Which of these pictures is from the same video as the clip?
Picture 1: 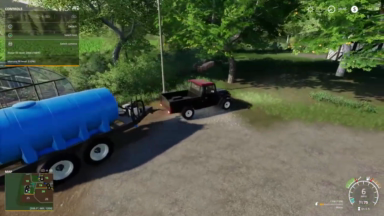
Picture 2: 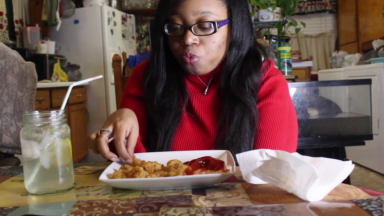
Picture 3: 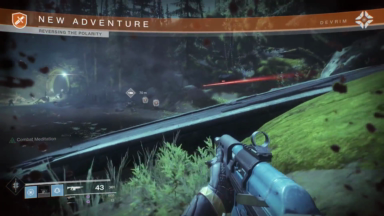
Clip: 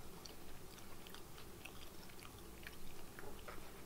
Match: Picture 2